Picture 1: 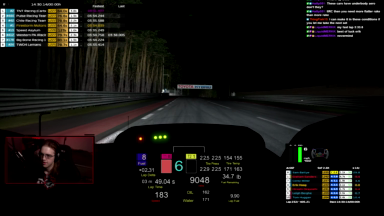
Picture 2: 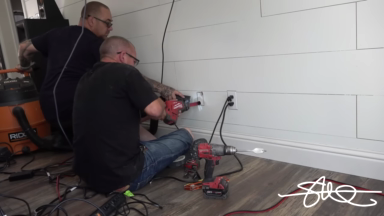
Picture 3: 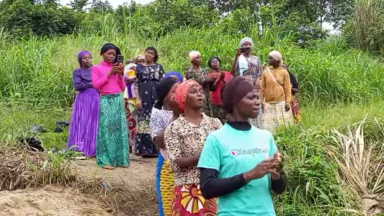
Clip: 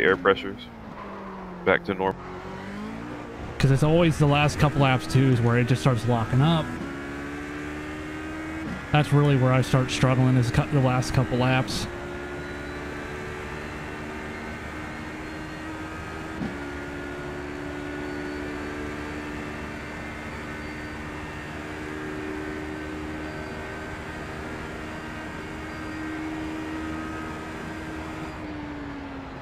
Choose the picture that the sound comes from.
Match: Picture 1